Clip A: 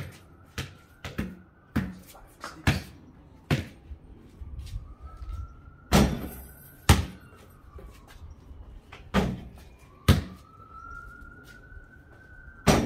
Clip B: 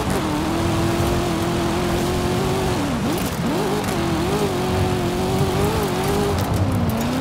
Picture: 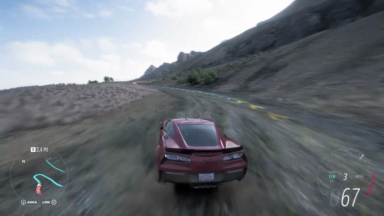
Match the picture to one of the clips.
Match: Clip B